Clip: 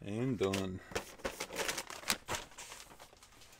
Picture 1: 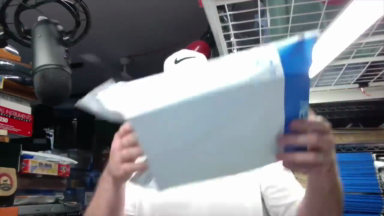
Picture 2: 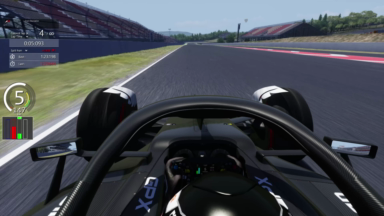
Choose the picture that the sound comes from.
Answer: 1